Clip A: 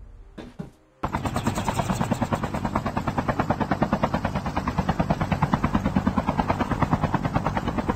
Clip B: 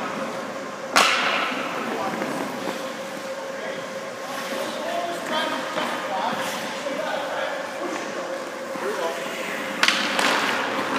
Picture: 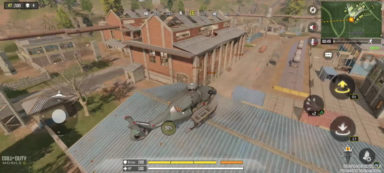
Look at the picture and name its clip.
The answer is A